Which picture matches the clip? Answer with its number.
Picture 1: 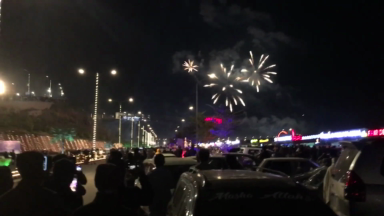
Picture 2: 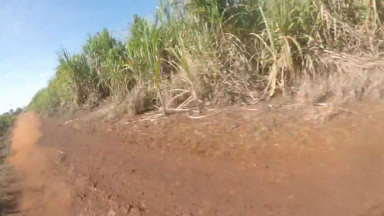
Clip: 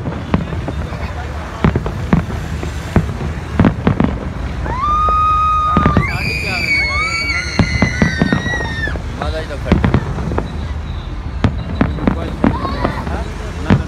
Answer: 1